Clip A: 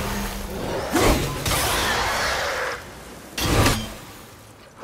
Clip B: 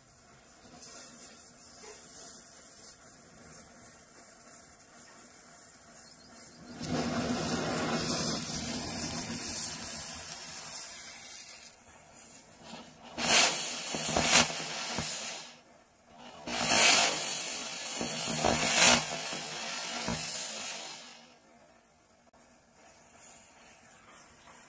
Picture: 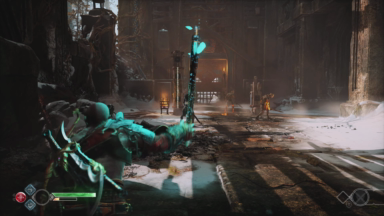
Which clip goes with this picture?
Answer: A